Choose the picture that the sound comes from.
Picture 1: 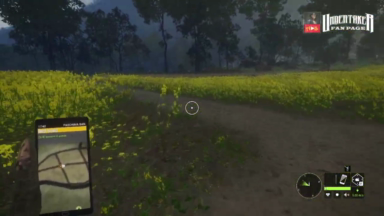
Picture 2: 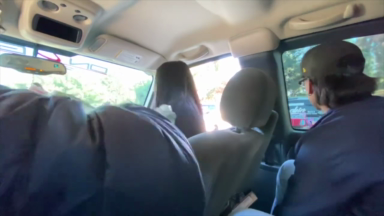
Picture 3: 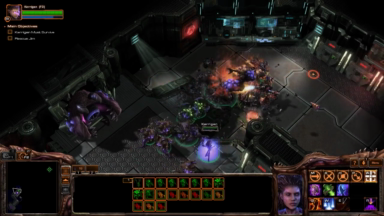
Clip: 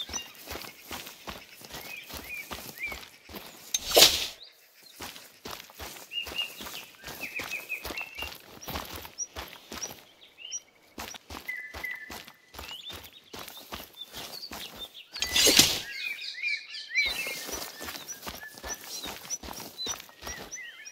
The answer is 1